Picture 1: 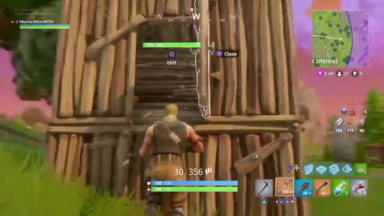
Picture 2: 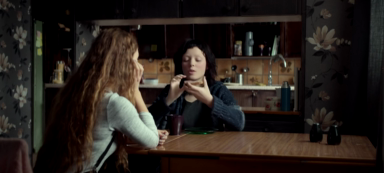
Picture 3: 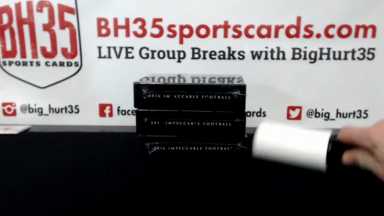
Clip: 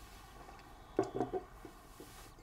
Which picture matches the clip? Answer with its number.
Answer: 2